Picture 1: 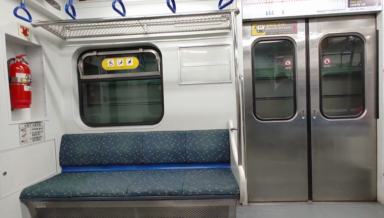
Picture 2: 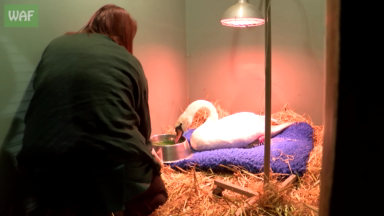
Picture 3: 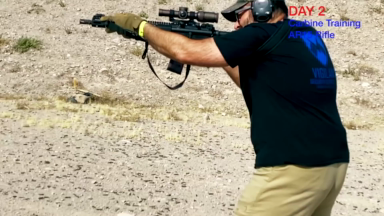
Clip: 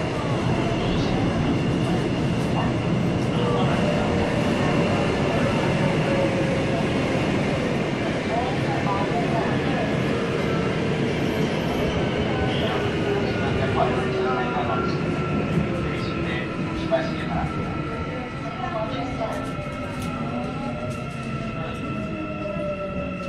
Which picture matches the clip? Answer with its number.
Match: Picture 1